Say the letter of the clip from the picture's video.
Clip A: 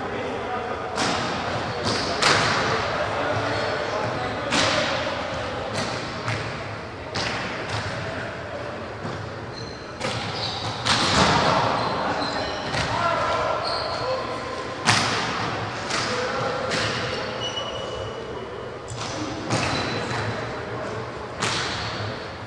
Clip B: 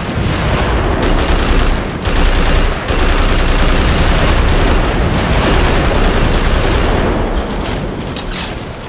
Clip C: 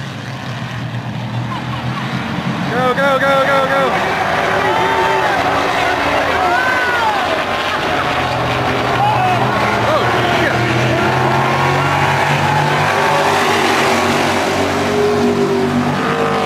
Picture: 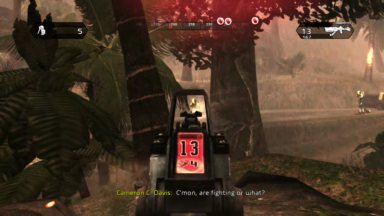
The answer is B